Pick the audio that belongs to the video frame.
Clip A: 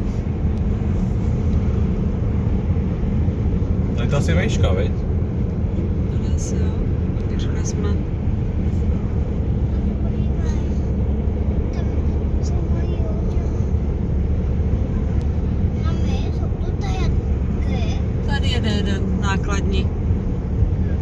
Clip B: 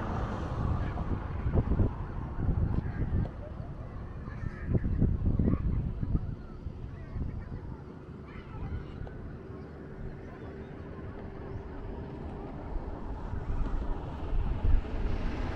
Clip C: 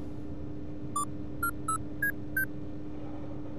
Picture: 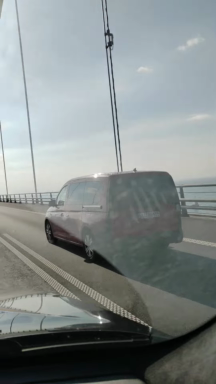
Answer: A